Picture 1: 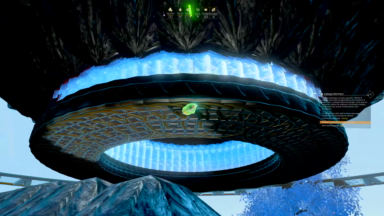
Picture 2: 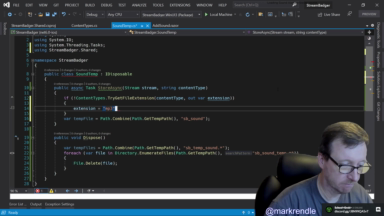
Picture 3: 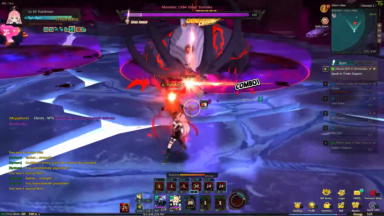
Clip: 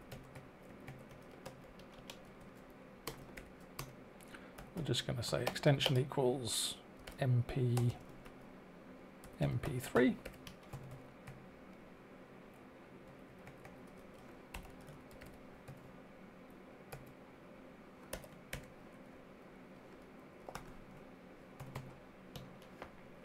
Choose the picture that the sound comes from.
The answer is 2